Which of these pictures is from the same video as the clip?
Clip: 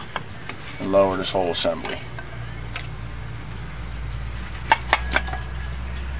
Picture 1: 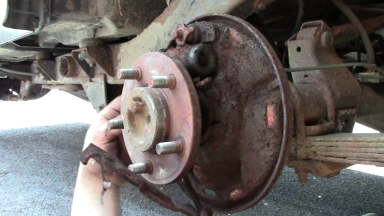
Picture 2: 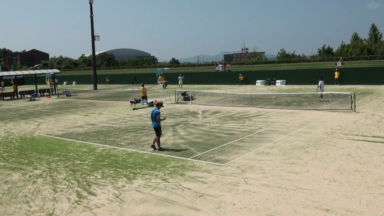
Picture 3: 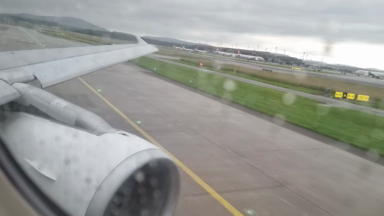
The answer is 1